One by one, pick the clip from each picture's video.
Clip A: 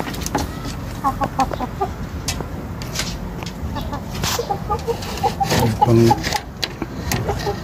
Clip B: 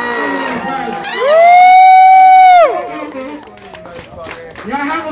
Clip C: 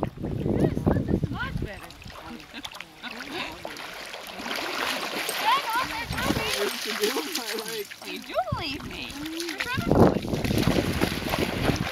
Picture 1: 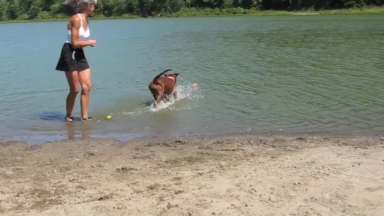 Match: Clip C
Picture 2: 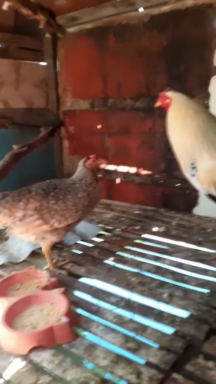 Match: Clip A